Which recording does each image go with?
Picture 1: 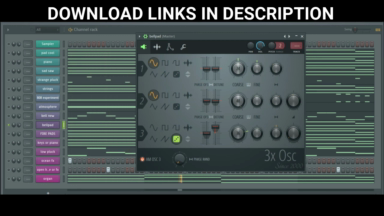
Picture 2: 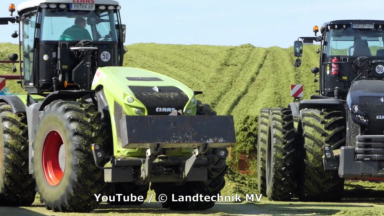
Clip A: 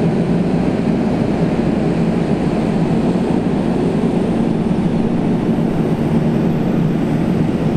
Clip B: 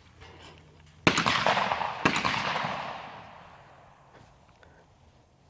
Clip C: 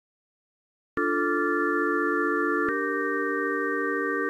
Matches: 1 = C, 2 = A